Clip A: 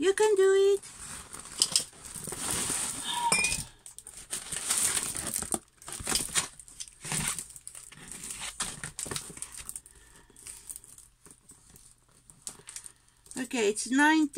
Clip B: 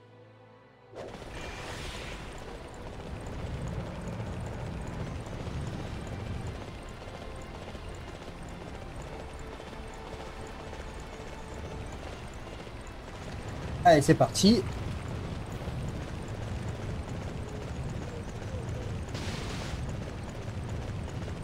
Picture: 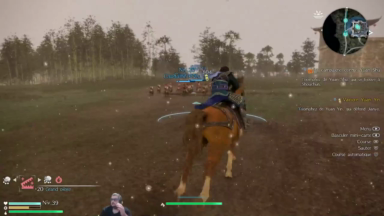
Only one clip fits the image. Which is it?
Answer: B